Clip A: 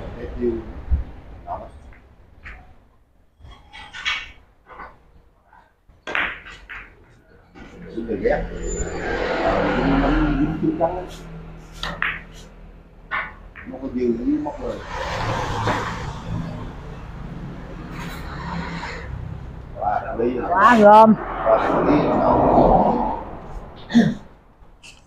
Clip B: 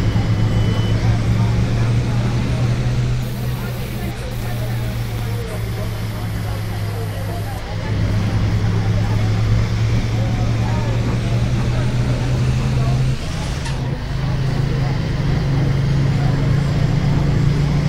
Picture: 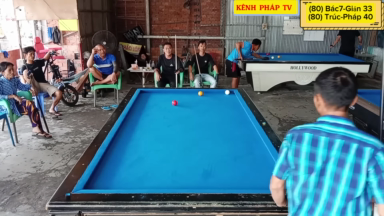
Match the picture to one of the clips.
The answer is A